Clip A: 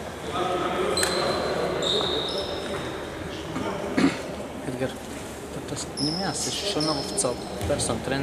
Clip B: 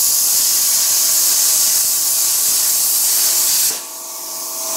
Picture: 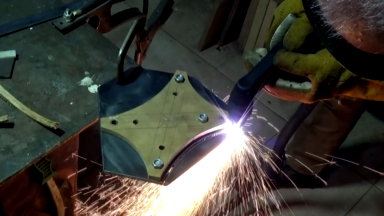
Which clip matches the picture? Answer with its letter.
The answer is B